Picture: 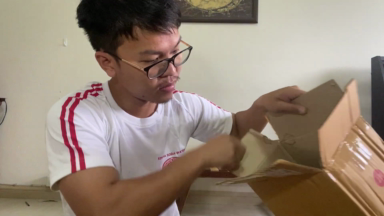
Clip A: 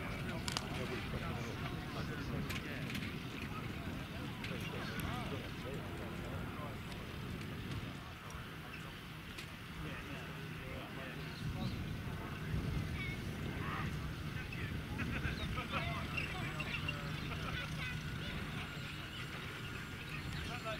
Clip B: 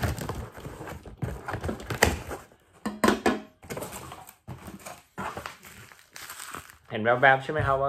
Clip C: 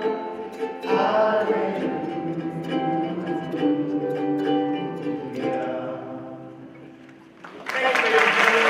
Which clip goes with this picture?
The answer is B